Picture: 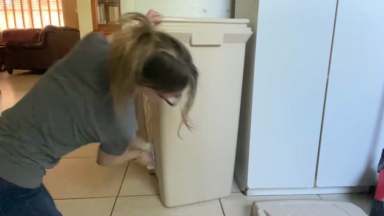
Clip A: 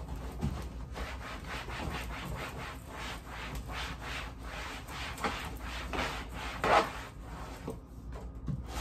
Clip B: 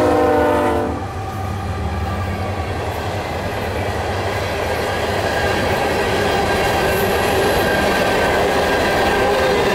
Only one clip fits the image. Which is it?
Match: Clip A